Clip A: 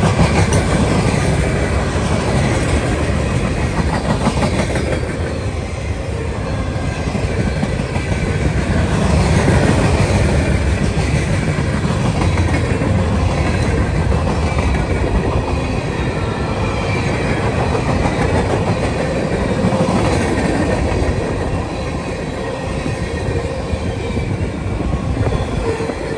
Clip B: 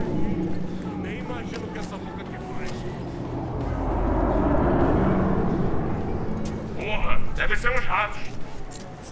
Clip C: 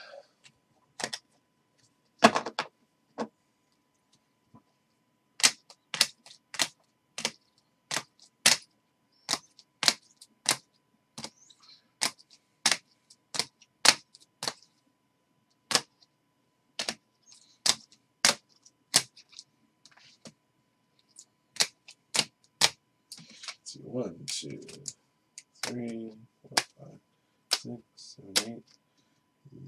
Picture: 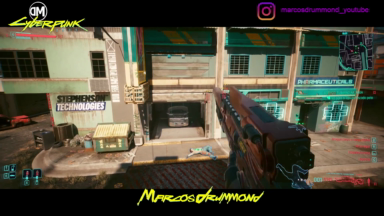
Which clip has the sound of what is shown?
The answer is B